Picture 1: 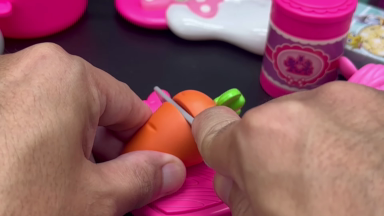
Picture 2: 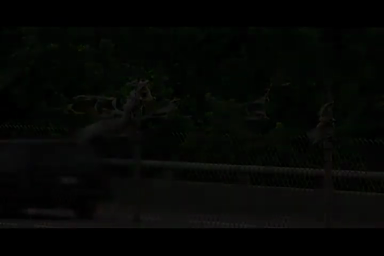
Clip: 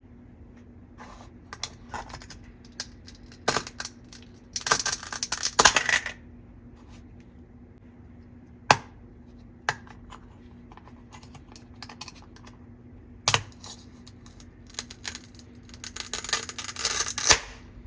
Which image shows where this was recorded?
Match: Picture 1